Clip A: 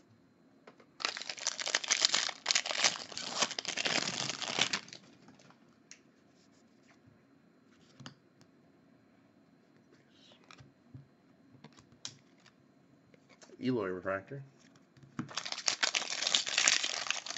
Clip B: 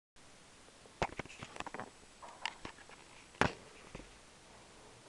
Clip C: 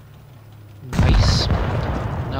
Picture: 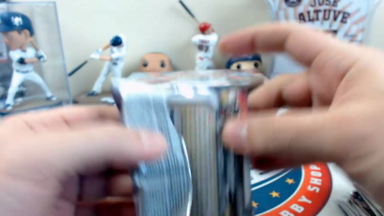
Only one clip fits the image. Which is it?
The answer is A